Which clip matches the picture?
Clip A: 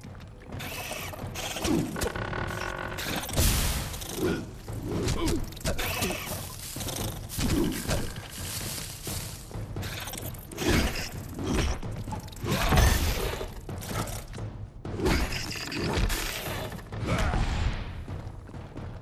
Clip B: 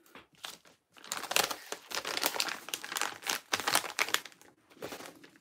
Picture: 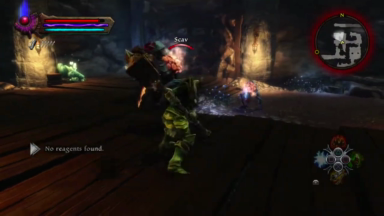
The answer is A